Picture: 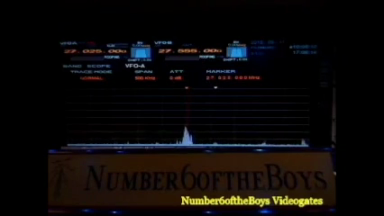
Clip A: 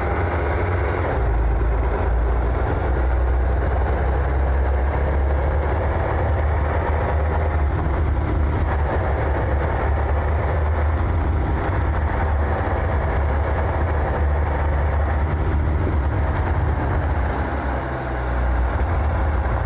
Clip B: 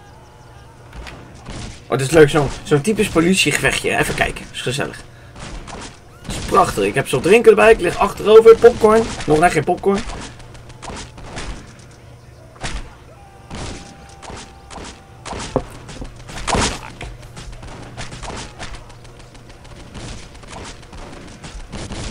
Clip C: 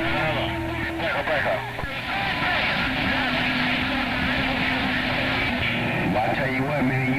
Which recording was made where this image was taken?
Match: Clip C